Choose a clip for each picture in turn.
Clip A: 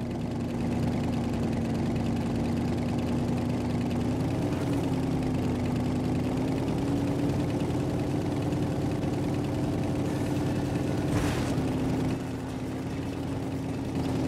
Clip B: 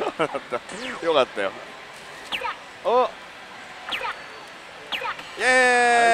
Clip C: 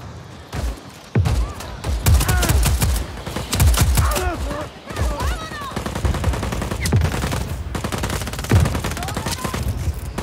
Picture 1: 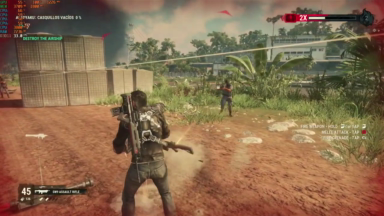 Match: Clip C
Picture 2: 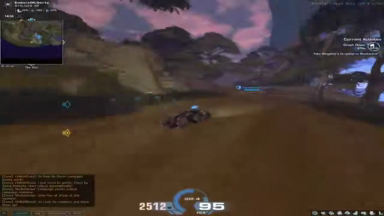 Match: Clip A